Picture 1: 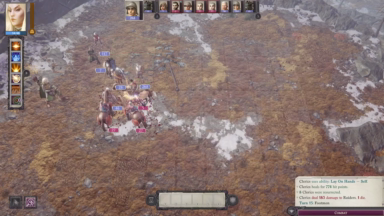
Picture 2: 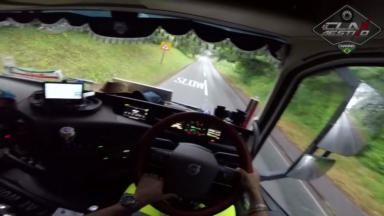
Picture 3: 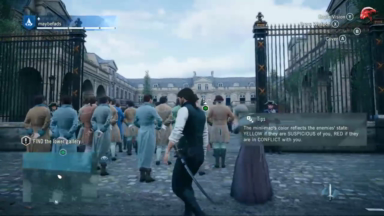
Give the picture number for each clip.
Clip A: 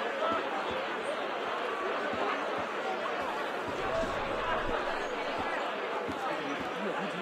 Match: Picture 3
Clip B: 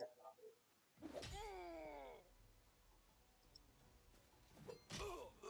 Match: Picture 1